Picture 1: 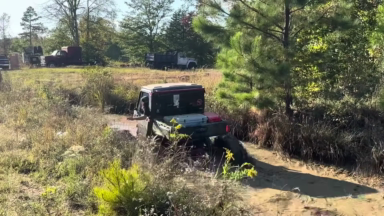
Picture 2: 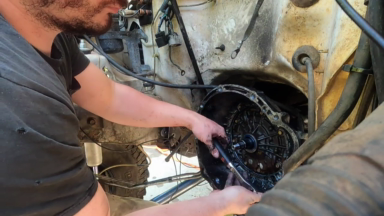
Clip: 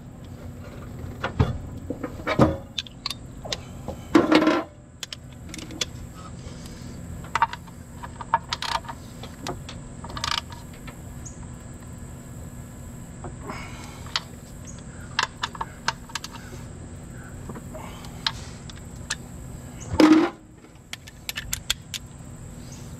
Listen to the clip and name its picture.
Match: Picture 2